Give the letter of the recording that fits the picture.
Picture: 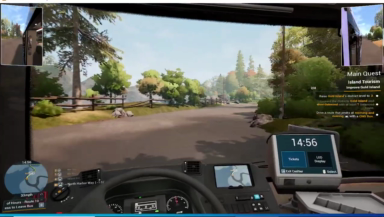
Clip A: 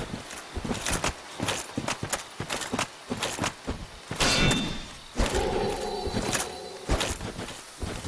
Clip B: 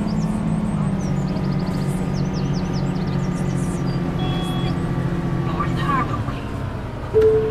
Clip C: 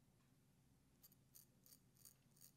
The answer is B